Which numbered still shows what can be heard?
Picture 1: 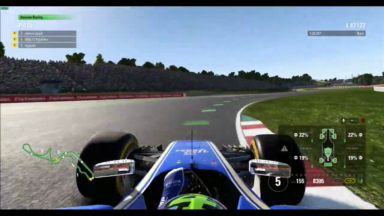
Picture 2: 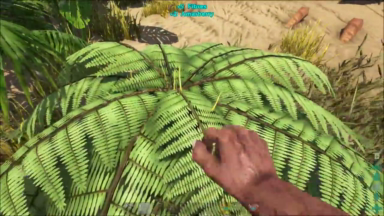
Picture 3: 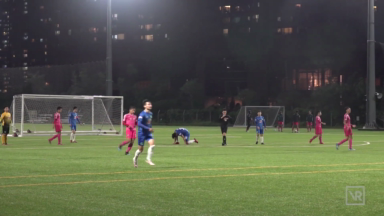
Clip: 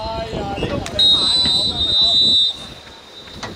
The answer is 3